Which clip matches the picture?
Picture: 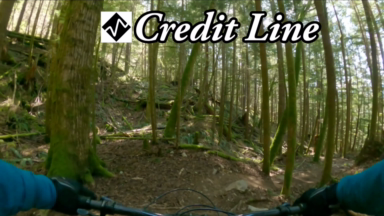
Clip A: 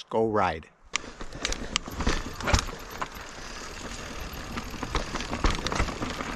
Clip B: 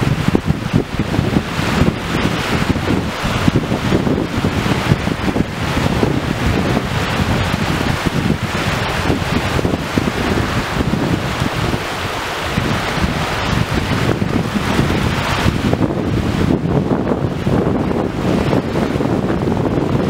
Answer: A